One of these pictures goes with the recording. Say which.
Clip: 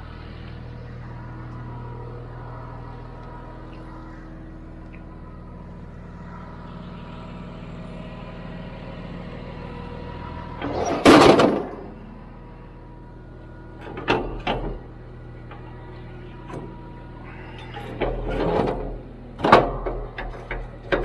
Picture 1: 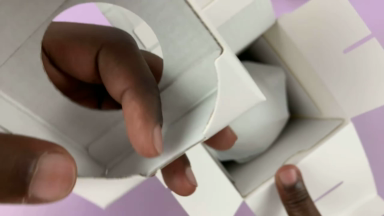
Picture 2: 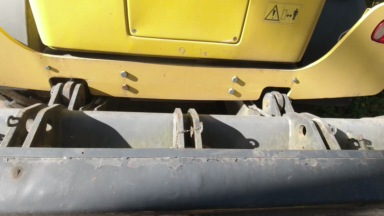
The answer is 2